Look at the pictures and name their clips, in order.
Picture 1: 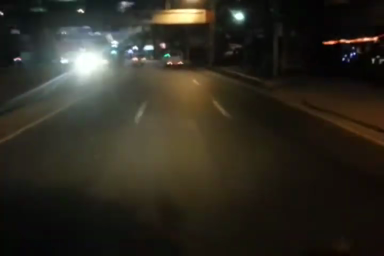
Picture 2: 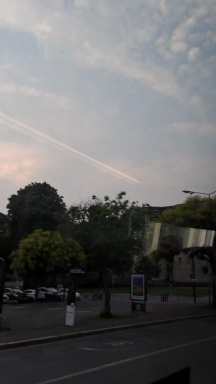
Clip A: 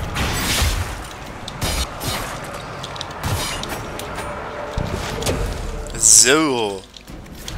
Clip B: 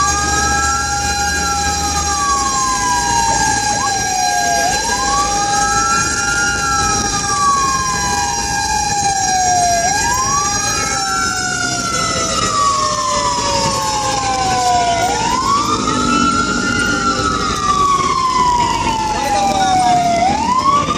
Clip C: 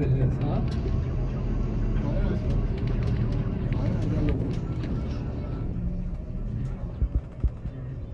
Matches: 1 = B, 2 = C